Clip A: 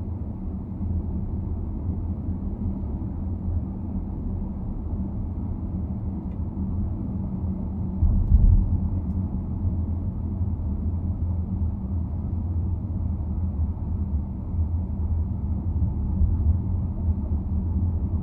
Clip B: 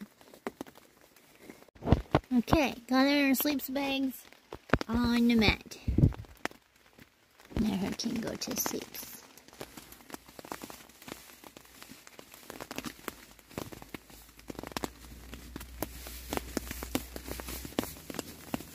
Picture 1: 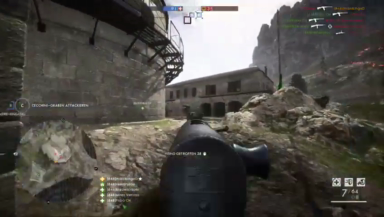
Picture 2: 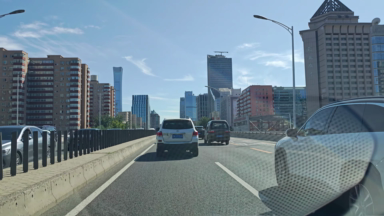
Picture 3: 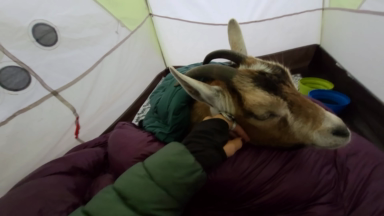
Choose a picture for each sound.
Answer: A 2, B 3